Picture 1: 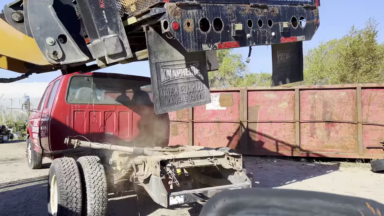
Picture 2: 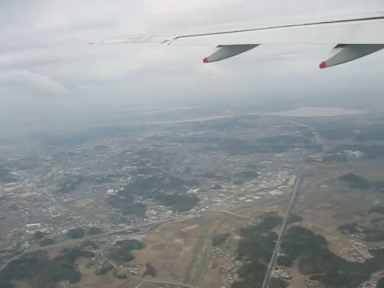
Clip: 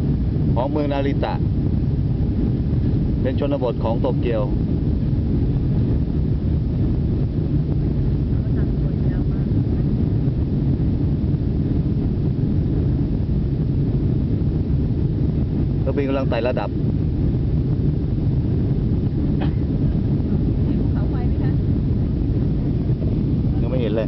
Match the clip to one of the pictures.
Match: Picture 2